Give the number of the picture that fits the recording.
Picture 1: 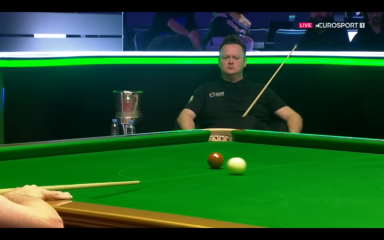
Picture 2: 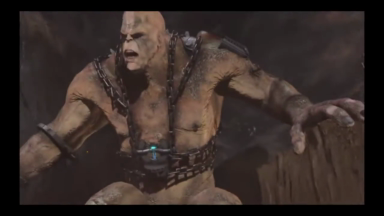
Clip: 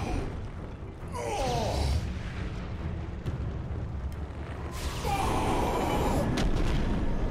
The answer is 2